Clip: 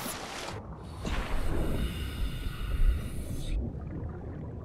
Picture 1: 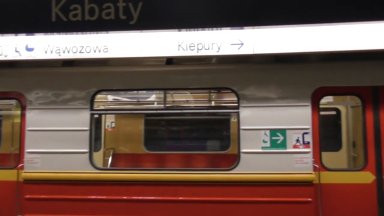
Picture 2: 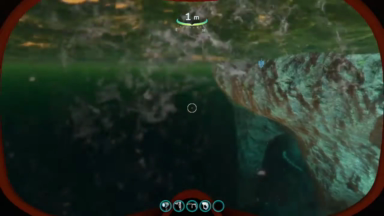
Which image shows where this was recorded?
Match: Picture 2